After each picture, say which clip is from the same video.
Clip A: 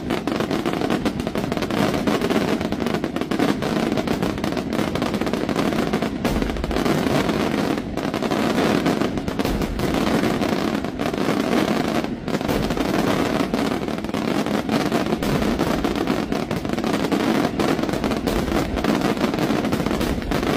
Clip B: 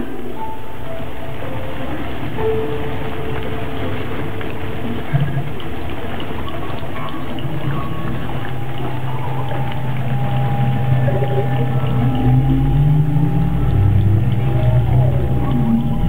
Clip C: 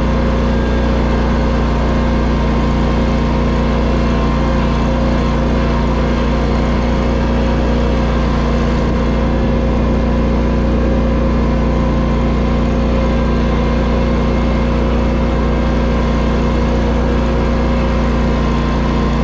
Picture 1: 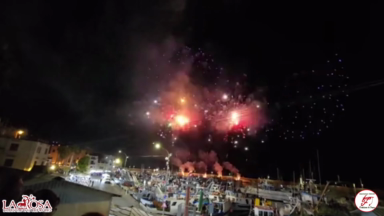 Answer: A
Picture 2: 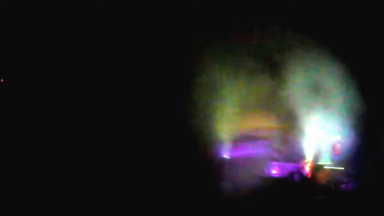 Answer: B